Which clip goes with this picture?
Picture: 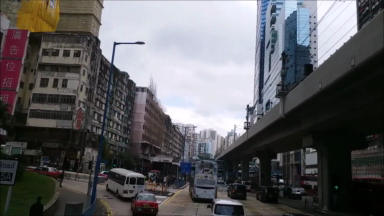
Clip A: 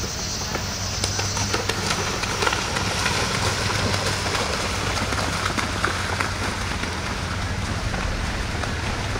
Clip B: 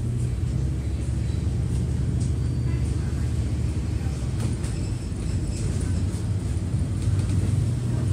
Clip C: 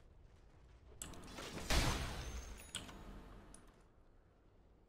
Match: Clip B